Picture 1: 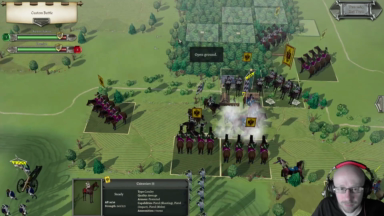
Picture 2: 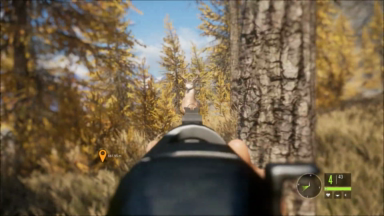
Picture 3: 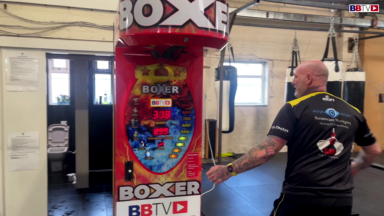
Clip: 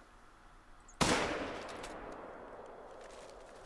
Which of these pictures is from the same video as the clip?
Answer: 2